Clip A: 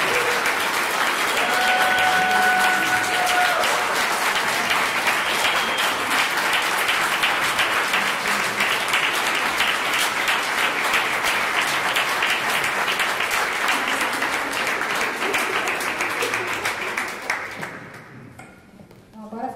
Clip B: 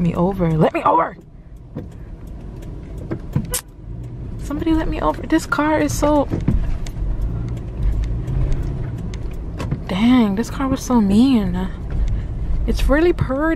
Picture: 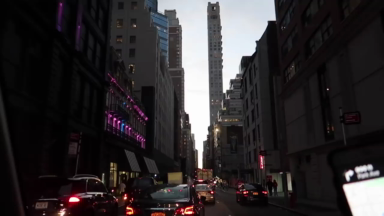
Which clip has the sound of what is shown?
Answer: B